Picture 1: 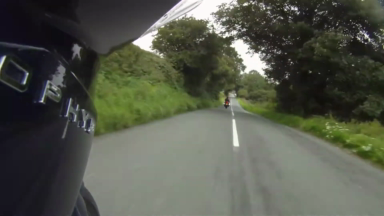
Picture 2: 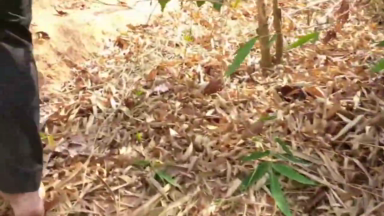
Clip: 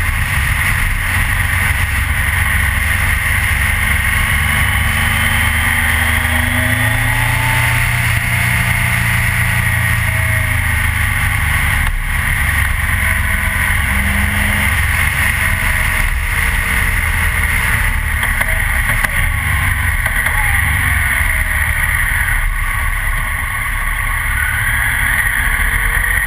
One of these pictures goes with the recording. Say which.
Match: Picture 1